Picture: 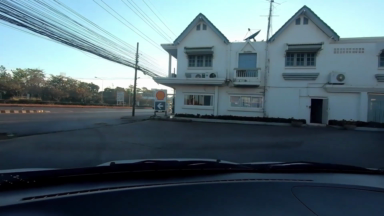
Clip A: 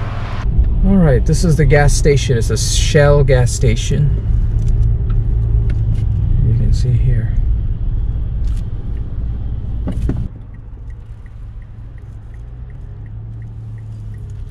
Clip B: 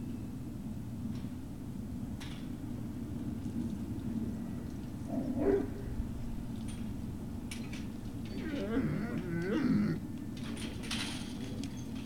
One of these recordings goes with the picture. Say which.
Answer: A